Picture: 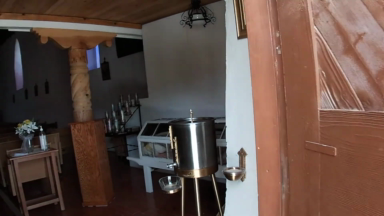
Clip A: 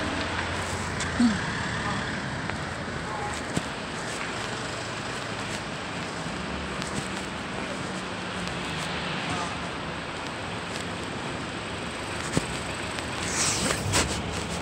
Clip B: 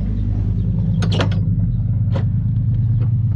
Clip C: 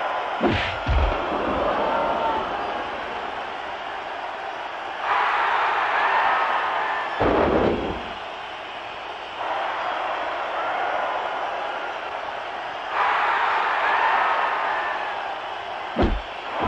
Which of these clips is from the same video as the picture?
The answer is B